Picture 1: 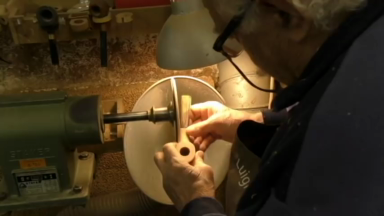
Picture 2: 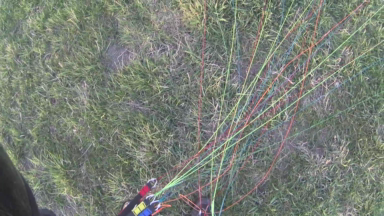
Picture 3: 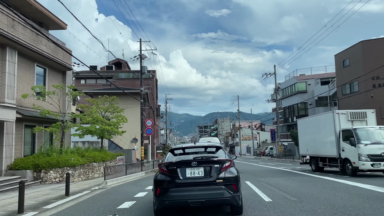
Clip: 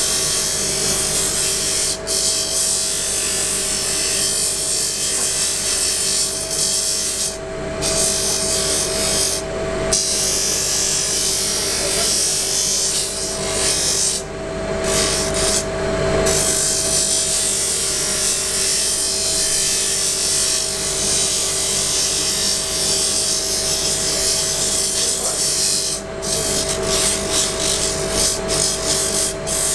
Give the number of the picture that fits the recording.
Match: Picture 1